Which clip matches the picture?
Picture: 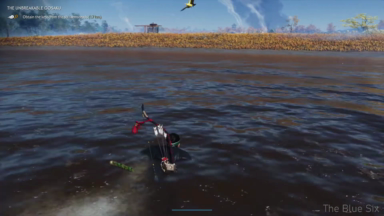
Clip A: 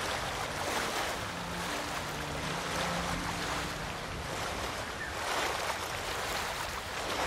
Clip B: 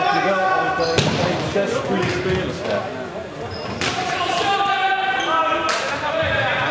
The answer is A